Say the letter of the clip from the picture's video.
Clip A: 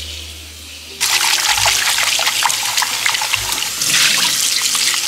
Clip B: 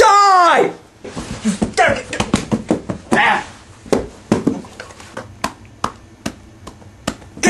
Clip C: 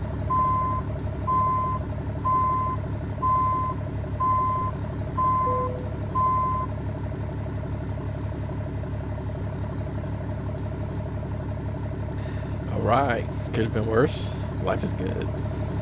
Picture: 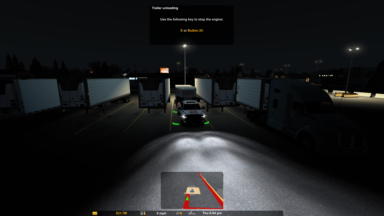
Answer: C